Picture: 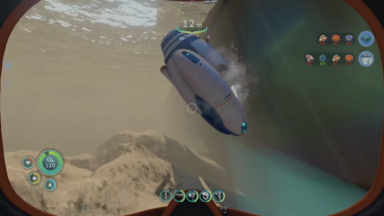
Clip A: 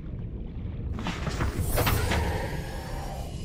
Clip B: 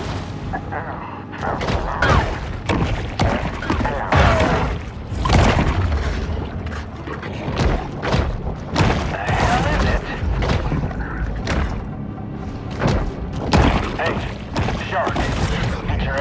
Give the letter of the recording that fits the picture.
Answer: A